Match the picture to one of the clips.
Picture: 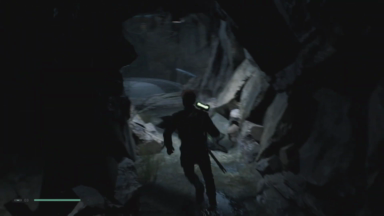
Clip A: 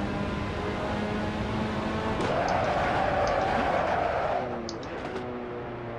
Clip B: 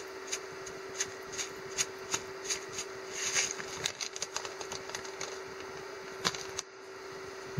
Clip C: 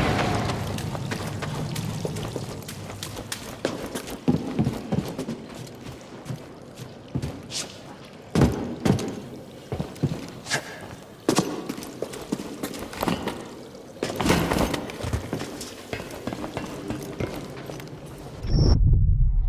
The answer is C